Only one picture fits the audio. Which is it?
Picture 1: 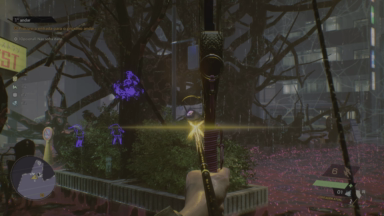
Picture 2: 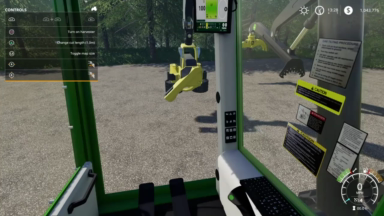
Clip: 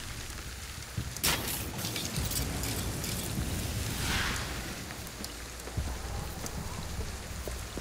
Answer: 1